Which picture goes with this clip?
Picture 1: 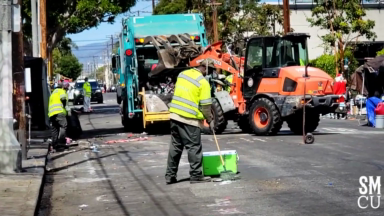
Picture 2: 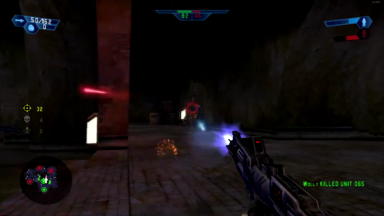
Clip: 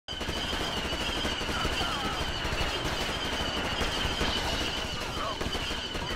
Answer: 2